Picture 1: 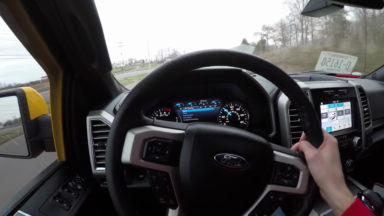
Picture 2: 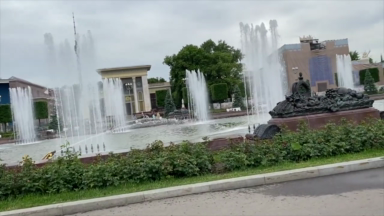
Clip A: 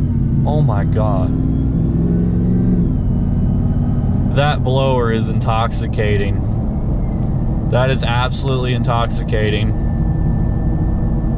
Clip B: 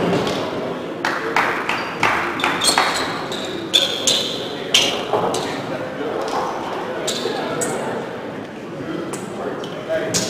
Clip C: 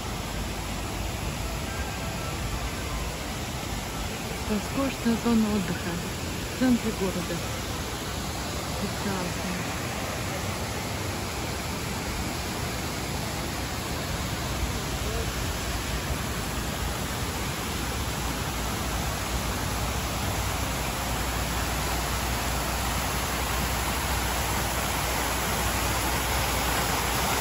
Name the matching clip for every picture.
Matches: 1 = A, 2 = C